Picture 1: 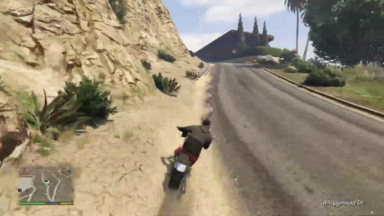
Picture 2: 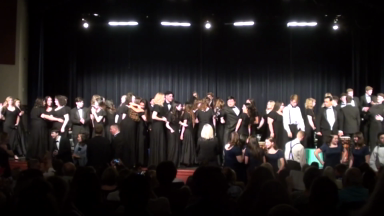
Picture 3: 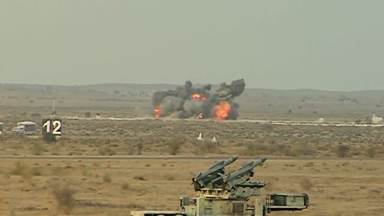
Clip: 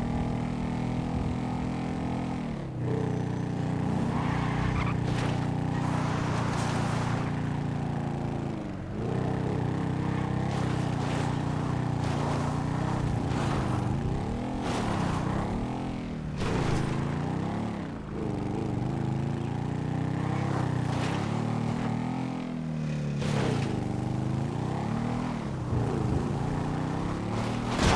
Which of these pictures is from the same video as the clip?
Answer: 1